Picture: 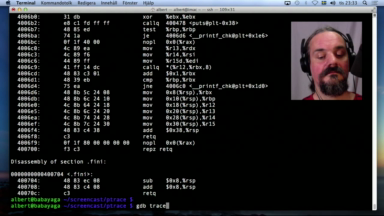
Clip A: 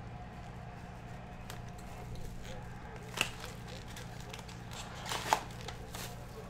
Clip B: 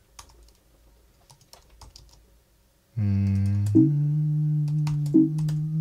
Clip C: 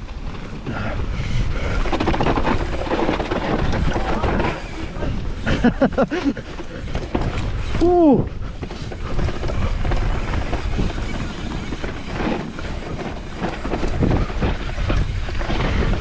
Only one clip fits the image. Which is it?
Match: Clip B